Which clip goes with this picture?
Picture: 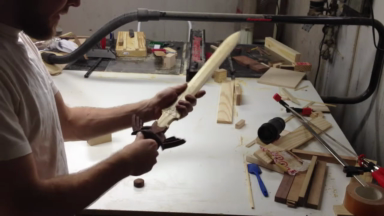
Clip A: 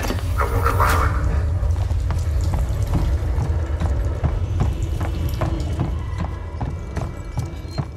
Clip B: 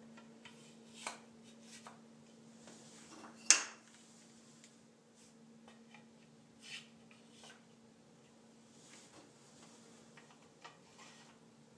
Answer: B